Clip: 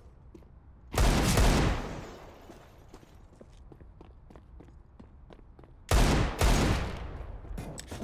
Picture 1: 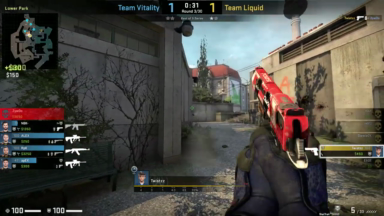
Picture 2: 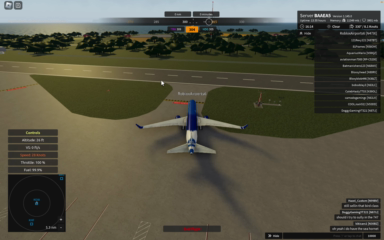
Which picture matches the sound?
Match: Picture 1